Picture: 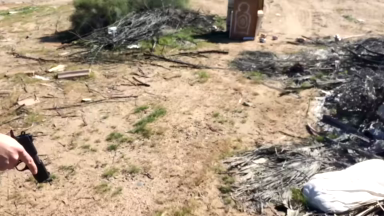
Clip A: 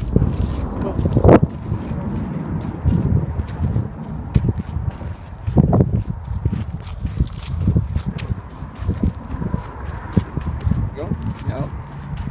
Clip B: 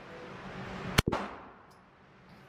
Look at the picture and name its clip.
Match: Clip A